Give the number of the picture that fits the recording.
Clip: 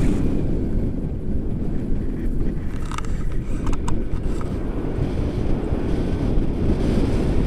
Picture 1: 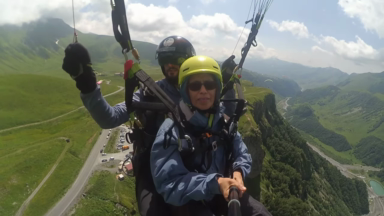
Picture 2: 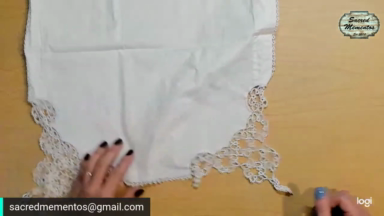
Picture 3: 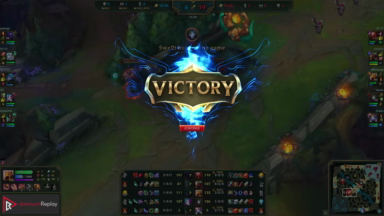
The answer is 1